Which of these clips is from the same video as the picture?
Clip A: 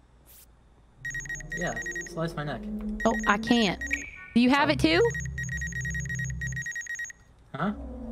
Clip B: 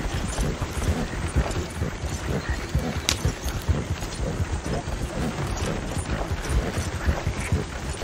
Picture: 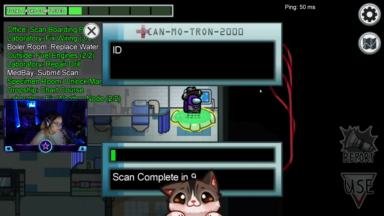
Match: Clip A